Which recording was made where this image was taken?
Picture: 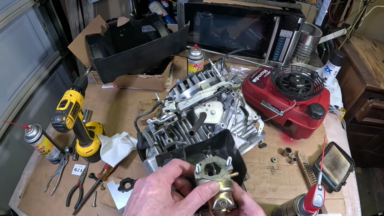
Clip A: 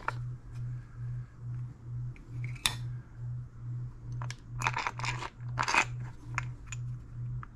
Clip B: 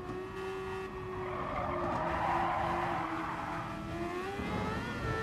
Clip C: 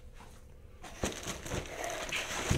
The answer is A